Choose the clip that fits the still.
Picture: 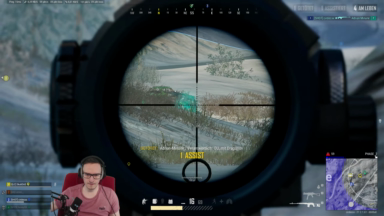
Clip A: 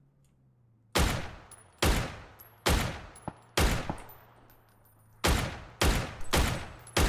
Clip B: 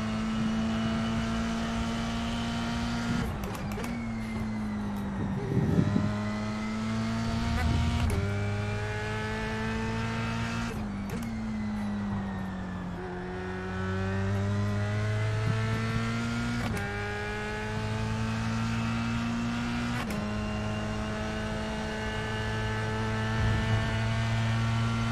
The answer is A